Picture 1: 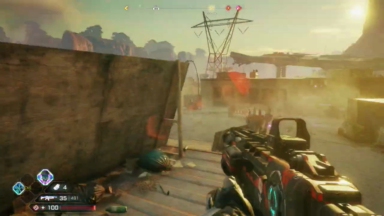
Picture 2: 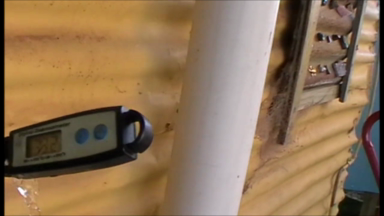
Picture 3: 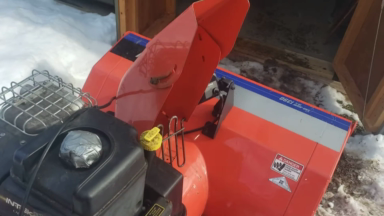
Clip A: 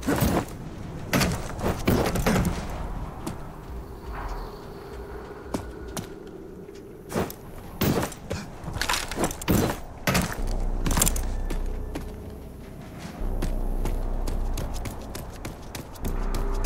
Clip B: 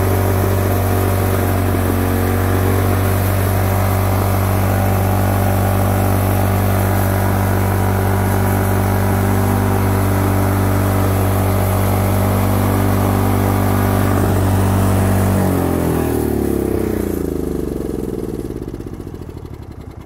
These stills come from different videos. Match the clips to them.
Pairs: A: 1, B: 3